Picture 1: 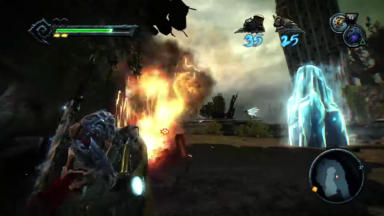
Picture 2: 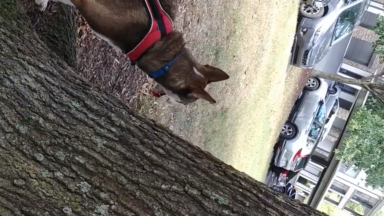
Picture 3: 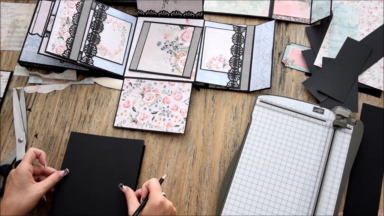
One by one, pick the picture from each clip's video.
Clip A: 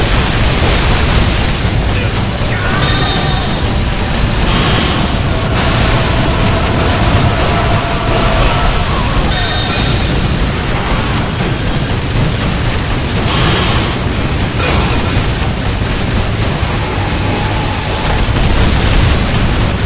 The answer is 1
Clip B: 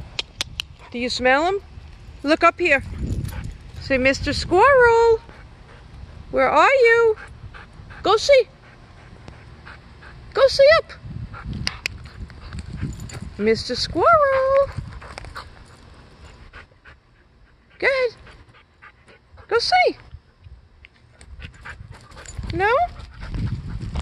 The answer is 2